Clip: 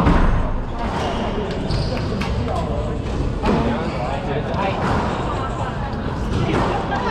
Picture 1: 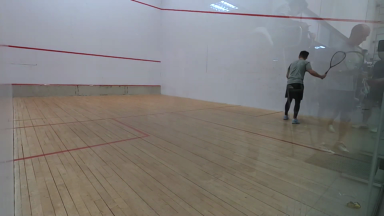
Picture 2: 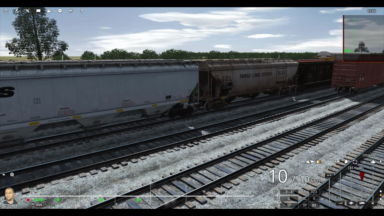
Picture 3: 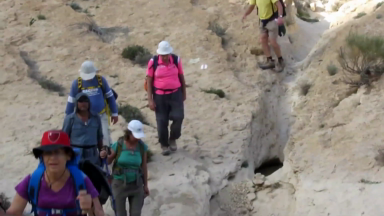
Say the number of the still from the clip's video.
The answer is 1